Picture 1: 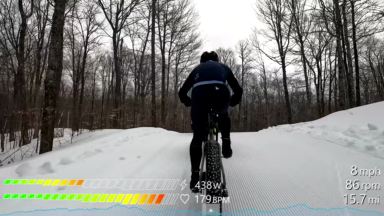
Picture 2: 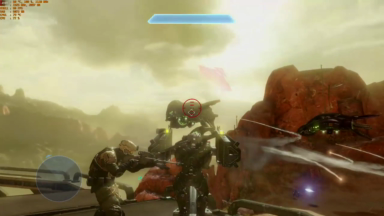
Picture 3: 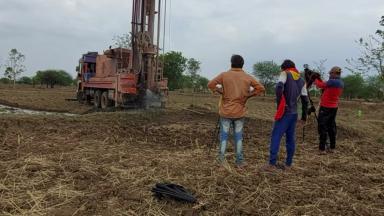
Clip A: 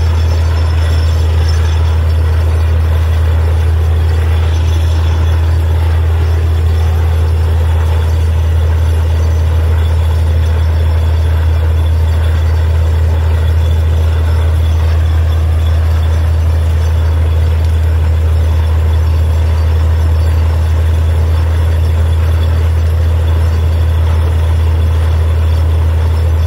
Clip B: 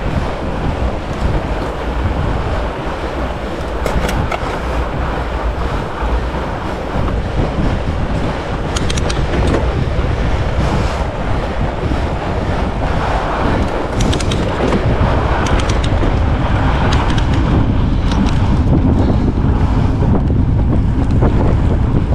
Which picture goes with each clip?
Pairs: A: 3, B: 1